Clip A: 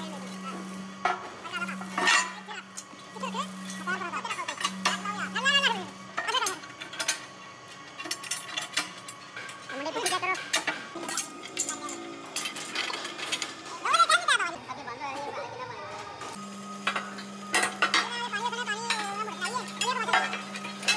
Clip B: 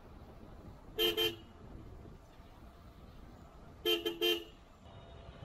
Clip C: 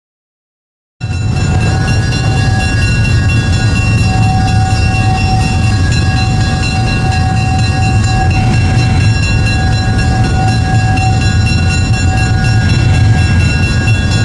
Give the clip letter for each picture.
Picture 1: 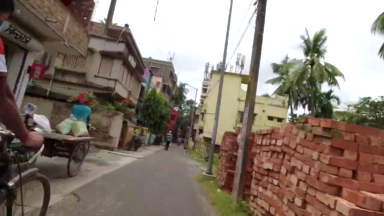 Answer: B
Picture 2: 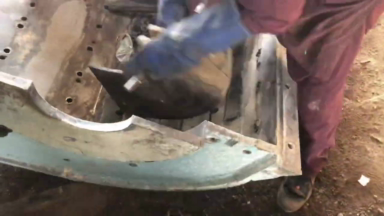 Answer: A